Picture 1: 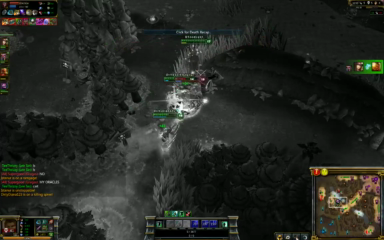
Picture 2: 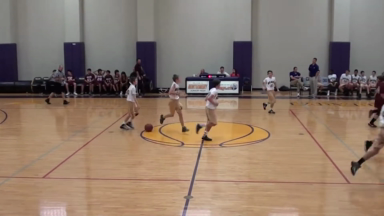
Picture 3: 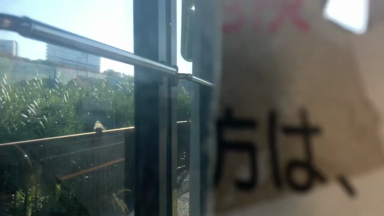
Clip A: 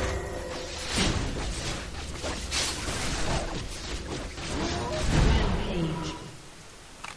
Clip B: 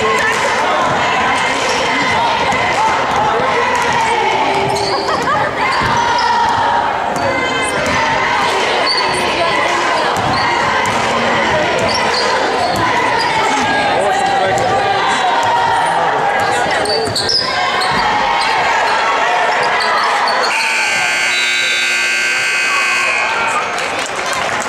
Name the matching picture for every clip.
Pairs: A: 1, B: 2